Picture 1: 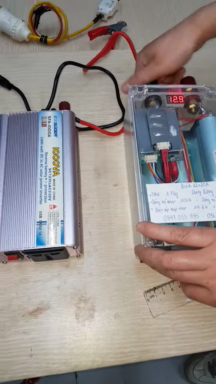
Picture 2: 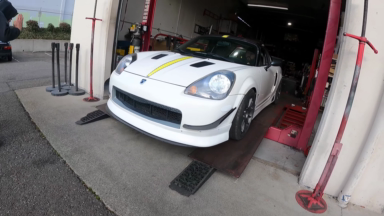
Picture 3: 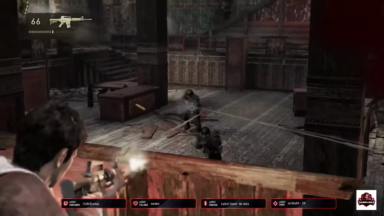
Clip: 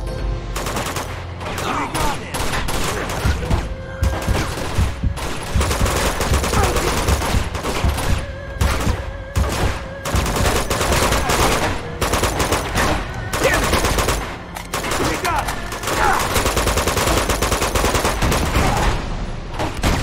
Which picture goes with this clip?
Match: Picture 3